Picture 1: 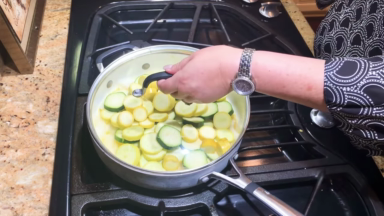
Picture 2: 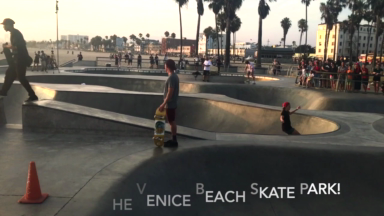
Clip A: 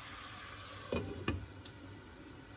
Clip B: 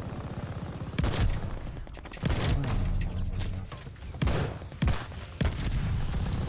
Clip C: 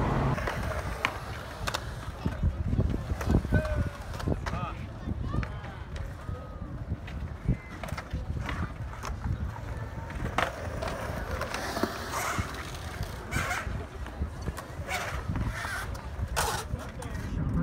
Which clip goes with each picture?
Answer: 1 A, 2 C